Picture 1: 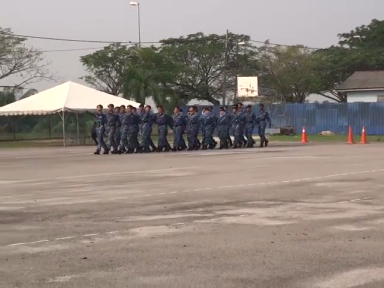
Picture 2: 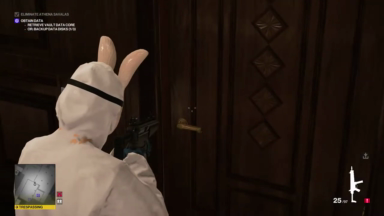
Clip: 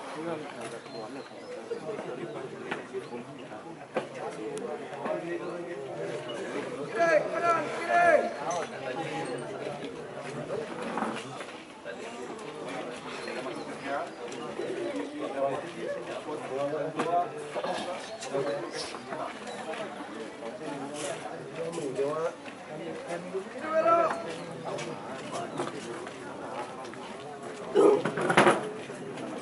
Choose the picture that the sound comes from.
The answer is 1